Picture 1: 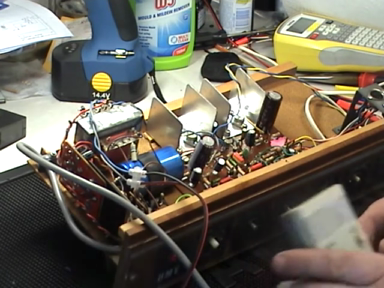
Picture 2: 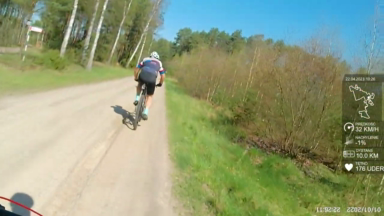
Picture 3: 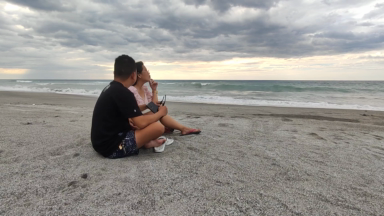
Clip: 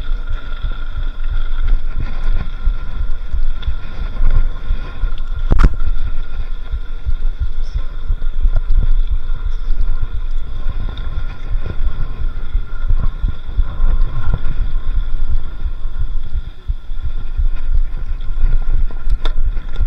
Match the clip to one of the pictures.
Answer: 2